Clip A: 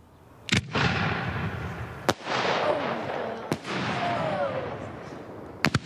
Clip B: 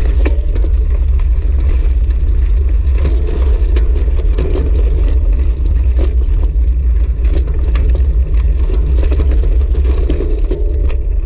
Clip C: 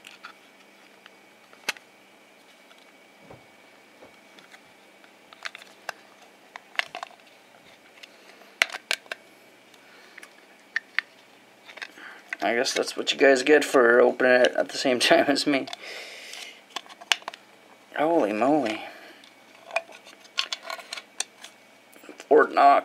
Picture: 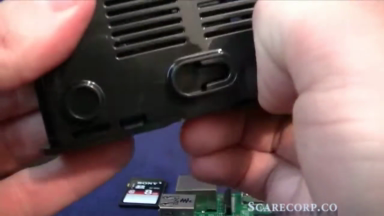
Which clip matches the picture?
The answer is C